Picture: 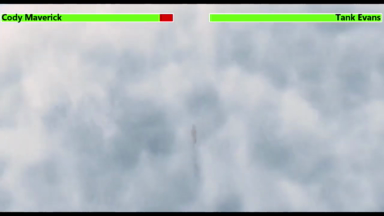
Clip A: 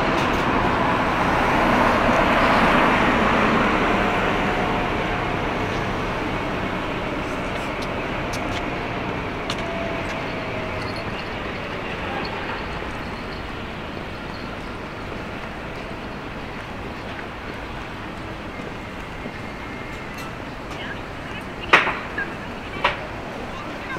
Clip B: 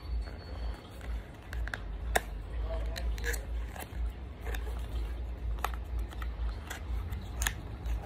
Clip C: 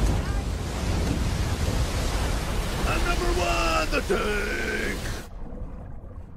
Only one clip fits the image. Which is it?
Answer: C